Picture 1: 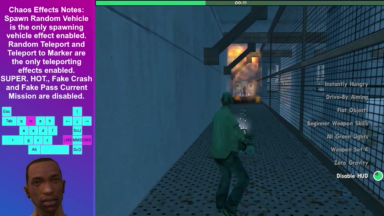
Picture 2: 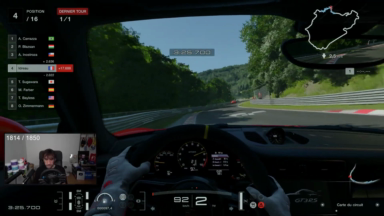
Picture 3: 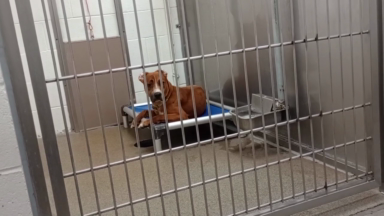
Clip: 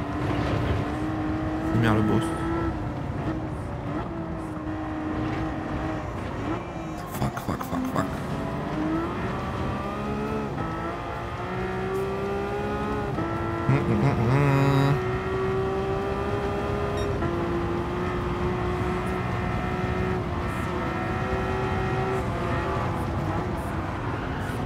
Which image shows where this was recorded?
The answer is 2